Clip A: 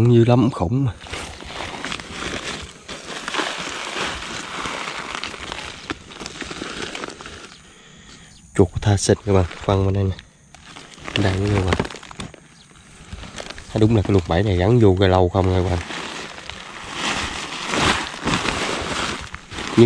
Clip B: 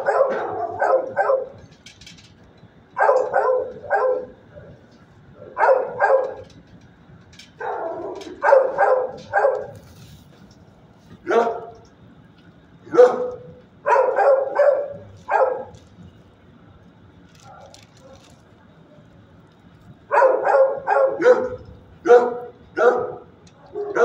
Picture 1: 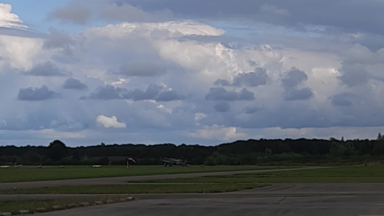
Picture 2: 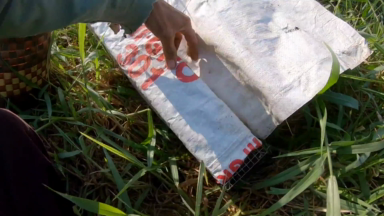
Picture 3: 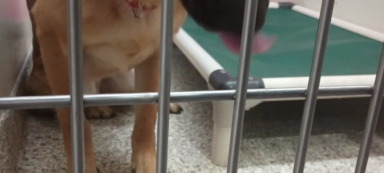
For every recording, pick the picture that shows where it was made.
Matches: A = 2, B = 3